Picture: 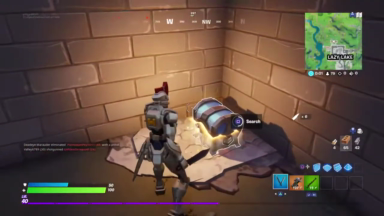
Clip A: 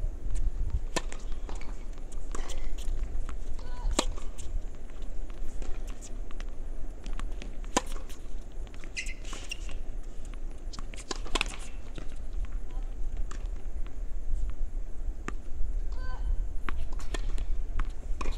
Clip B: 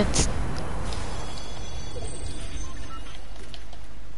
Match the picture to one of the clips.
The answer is B